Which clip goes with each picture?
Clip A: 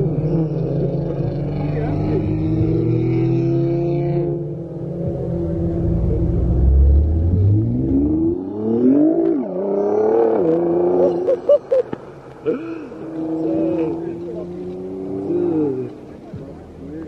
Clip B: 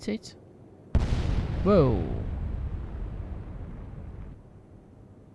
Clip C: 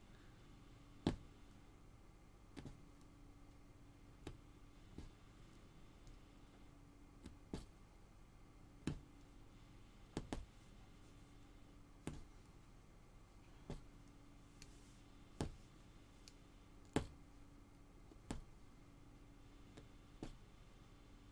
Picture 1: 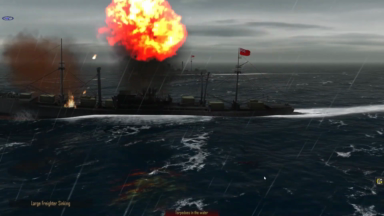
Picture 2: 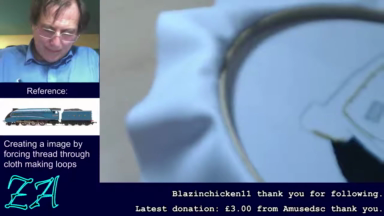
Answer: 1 B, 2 C